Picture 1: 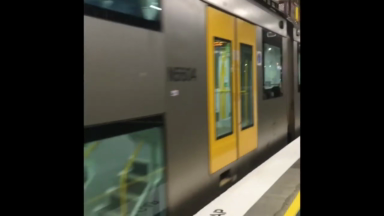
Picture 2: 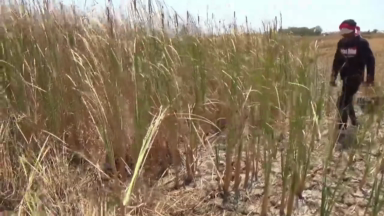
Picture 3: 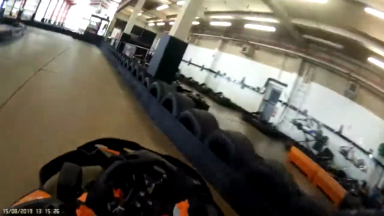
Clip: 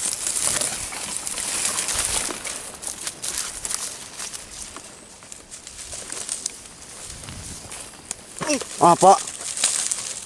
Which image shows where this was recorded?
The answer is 2